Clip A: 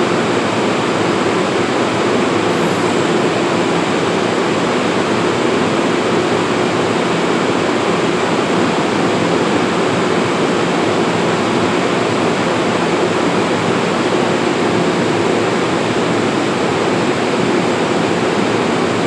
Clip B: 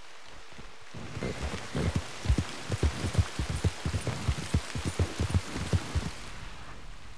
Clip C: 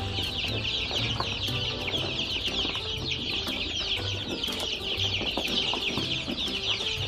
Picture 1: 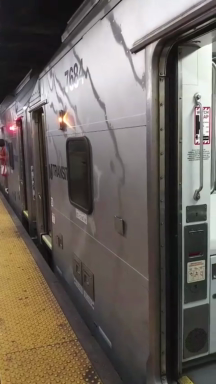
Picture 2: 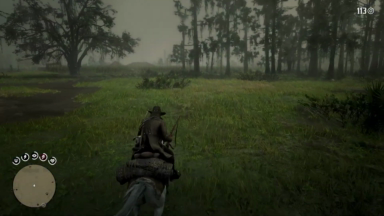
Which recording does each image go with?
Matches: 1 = A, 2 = B